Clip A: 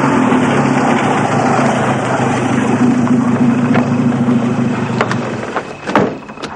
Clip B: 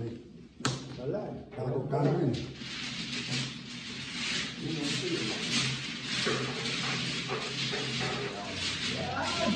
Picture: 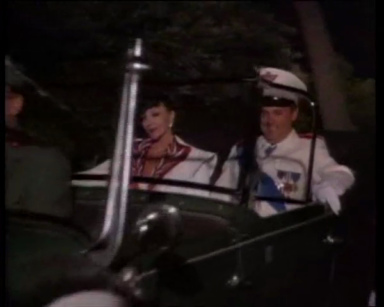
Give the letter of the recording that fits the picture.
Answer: A